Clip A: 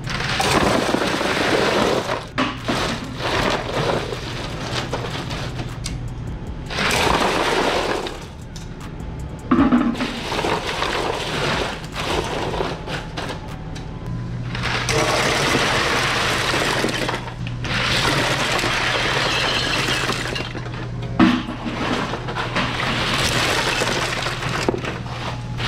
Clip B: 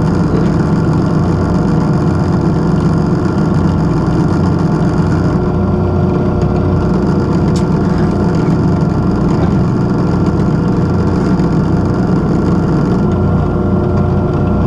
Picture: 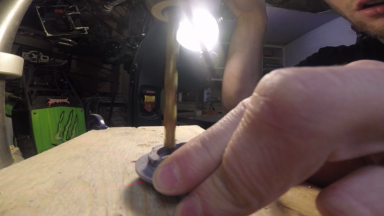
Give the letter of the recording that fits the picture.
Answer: B